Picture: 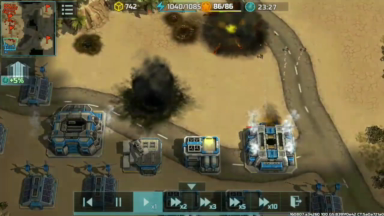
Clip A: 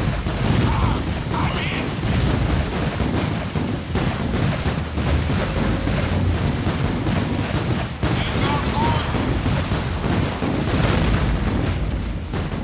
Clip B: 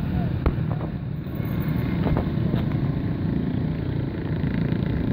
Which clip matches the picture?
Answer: A